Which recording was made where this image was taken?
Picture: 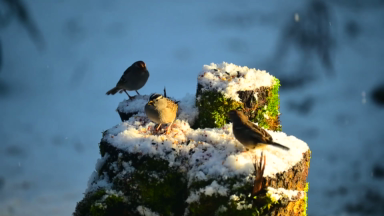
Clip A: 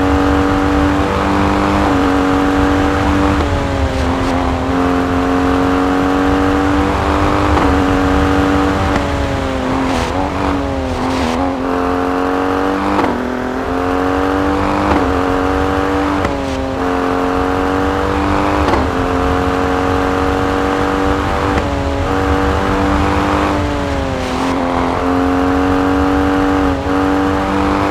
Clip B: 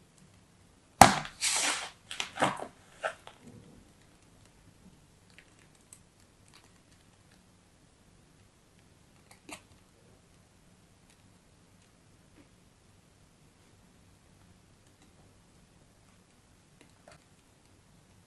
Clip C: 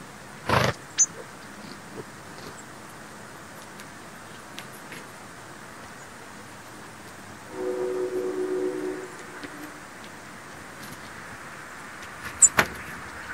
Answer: C